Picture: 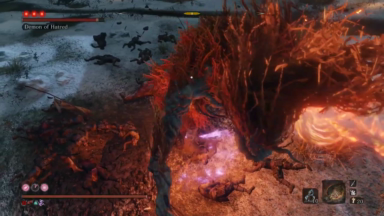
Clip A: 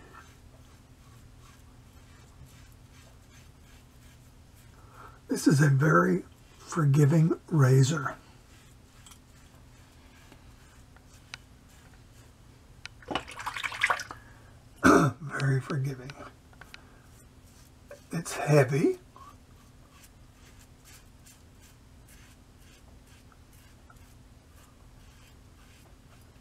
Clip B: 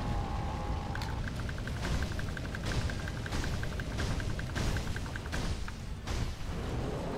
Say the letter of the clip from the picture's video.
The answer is B